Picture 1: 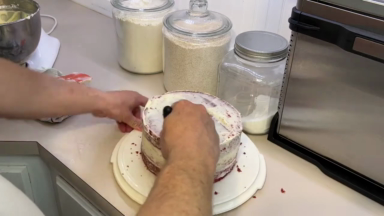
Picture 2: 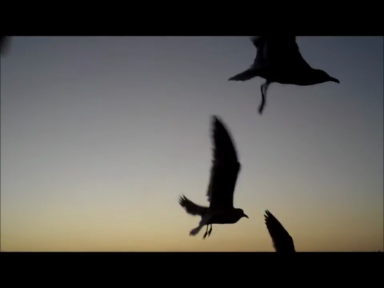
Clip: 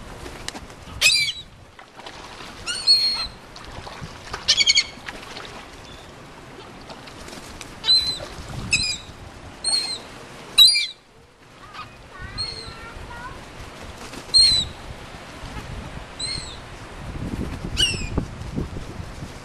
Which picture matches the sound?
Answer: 2